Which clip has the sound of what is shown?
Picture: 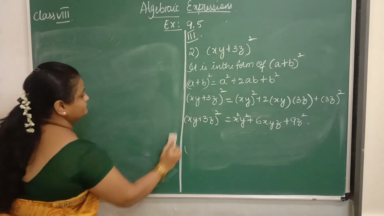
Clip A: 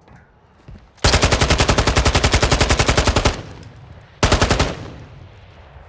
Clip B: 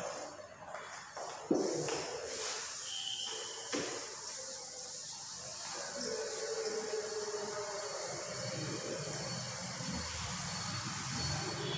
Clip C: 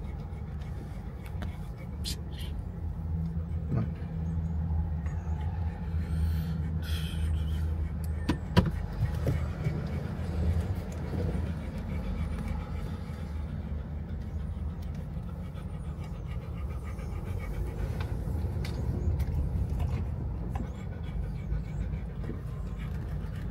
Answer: B